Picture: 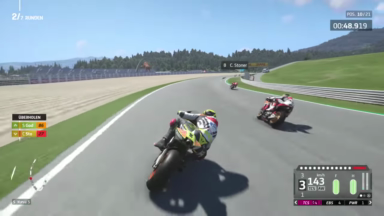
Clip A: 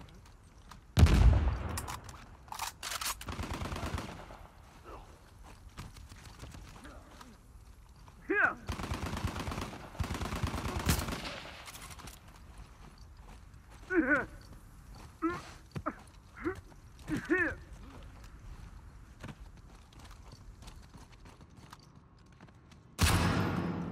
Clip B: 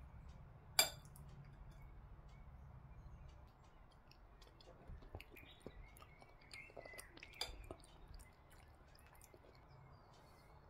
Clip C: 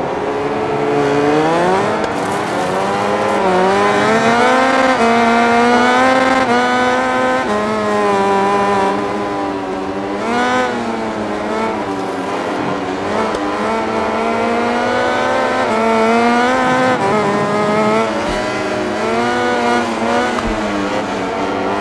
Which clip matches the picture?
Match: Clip C